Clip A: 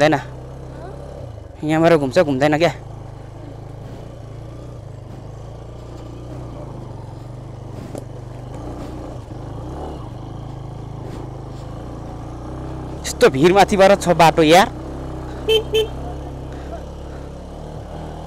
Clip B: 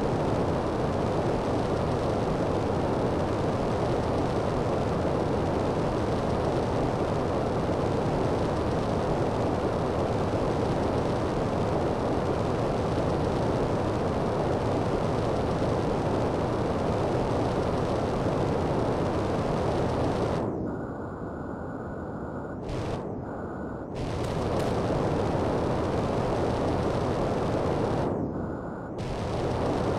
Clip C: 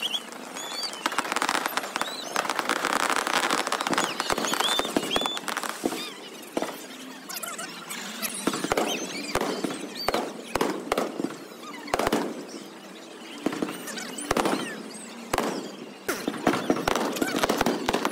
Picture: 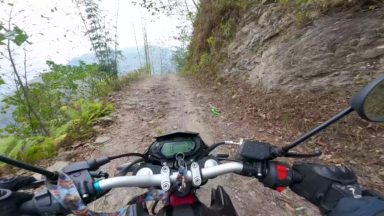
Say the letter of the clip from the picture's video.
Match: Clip A